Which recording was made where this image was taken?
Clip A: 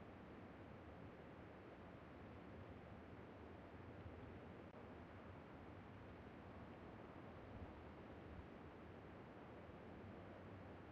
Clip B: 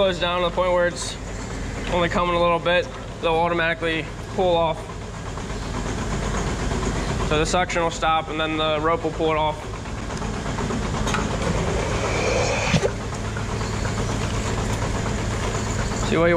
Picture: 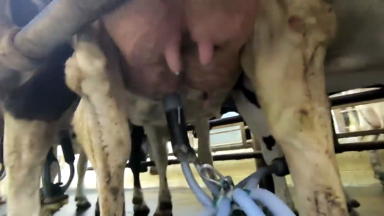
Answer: B